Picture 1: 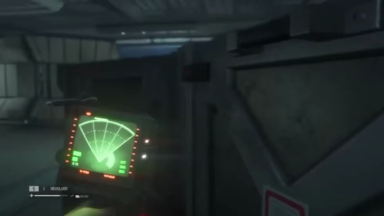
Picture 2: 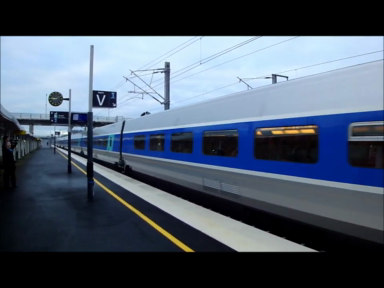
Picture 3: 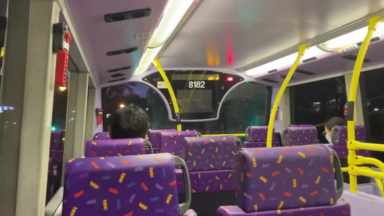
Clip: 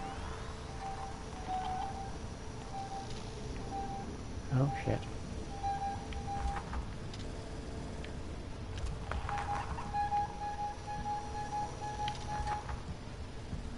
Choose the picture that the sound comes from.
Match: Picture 1